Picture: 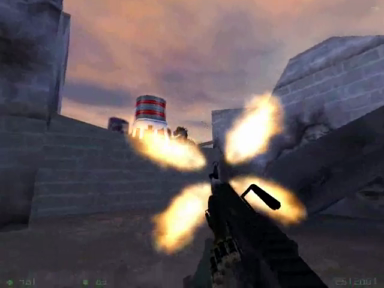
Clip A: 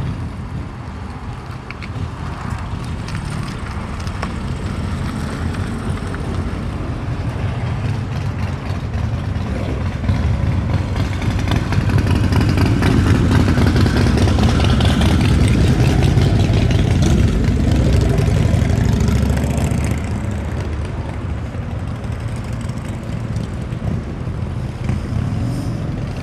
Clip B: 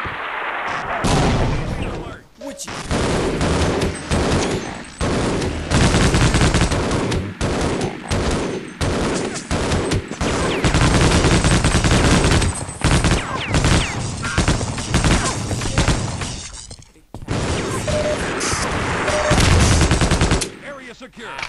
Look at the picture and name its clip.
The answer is B